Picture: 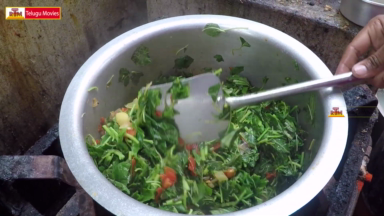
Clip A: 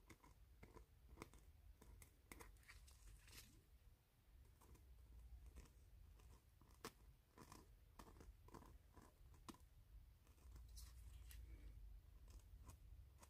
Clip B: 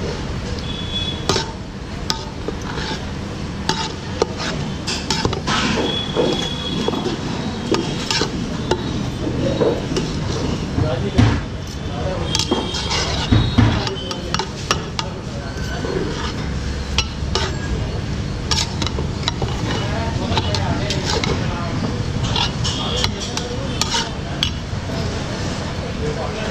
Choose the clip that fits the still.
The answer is B